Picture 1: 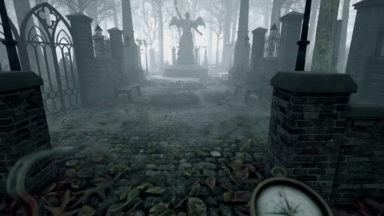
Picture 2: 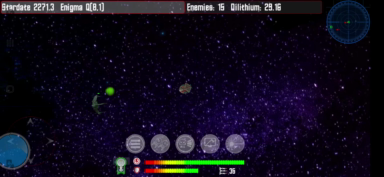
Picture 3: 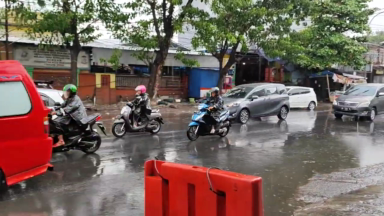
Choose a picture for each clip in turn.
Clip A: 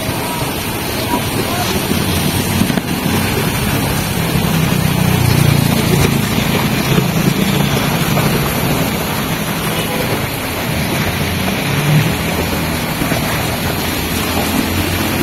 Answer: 3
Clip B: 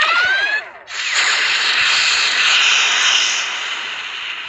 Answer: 2